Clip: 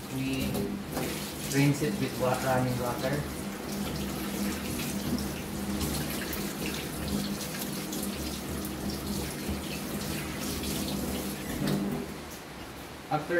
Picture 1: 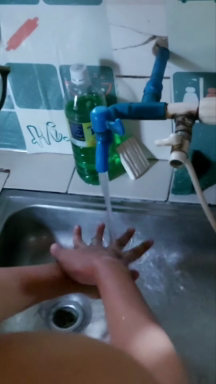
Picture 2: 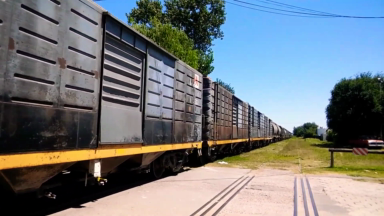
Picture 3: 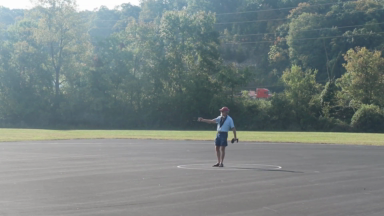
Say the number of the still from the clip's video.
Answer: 1